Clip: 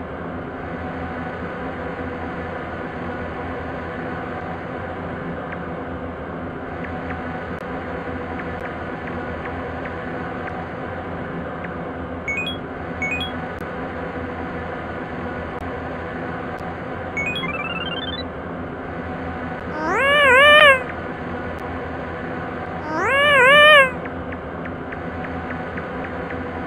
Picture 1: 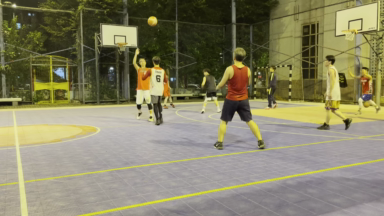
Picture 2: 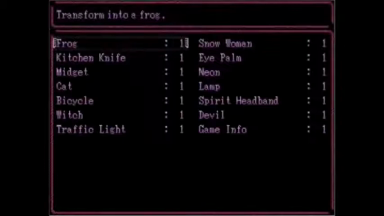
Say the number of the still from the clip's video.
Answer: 2